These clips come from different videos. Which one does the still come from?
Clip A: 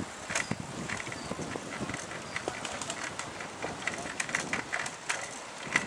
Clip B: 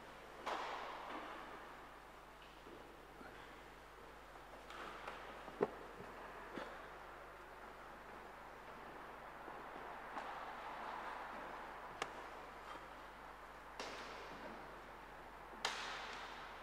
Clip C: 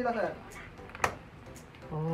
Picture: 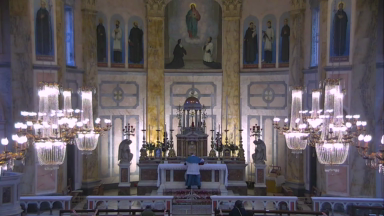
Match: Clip B